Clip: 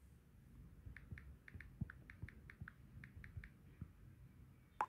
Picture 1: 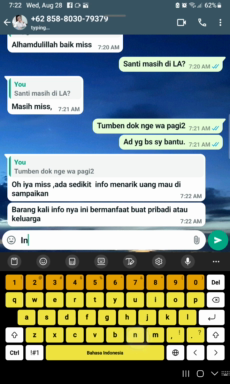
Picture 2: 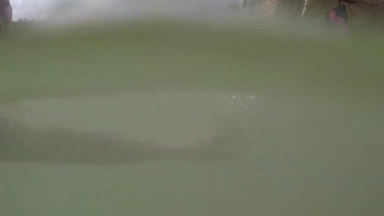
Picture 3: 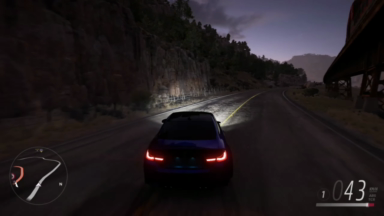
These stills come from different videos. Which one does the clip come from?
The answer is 1